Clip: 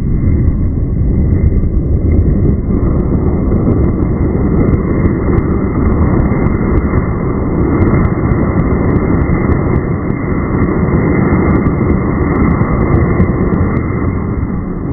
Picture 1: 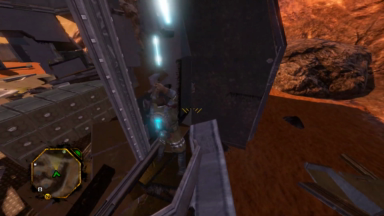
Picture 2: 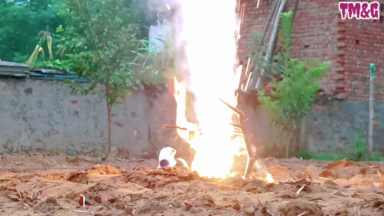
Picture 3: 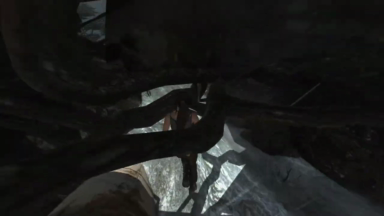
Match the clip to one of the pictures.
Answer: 2